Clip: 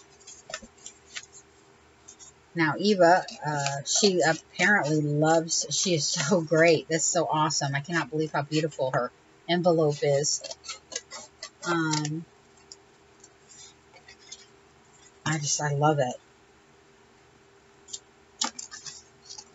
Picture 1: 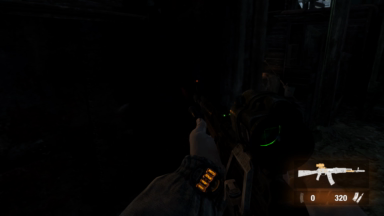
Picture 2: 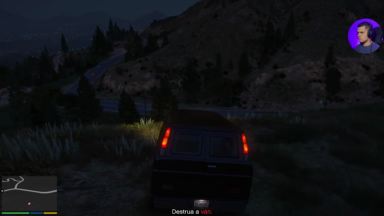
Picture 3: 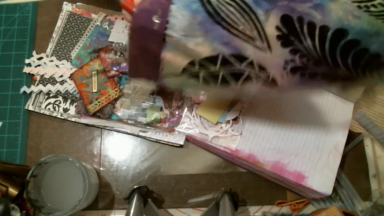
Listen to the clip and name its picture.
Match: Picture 3